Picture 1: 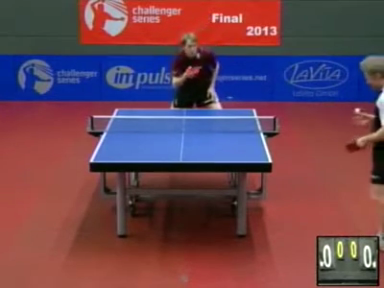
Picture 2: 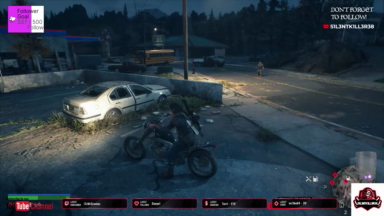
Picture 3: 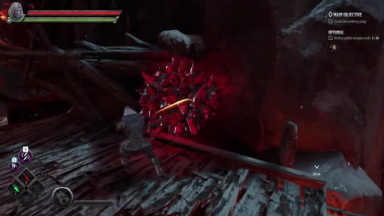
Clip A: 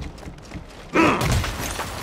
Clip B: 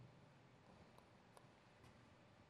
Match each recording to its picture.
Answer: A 3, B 1